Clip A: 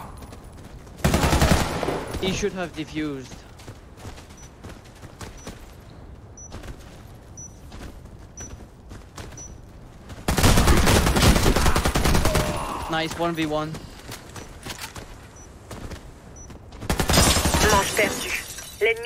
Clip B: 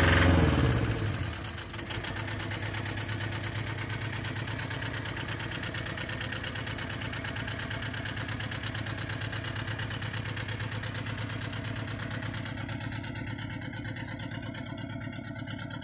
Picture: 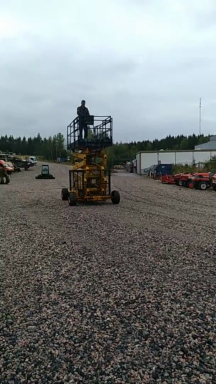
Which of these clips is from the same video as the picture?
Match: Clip B